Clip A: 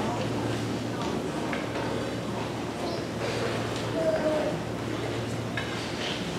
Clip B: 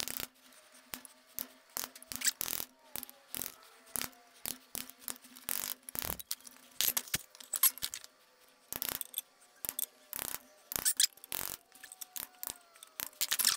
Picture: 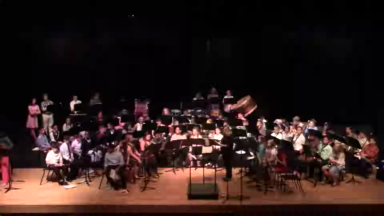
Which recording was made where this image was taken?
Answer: A